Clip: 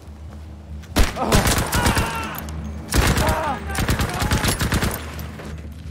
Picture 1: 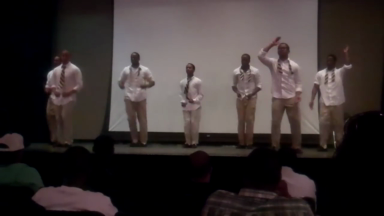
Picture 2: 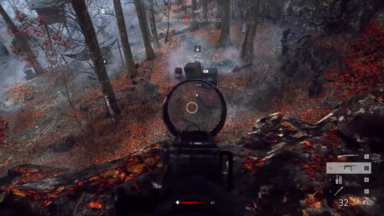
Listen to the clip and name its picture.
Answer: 2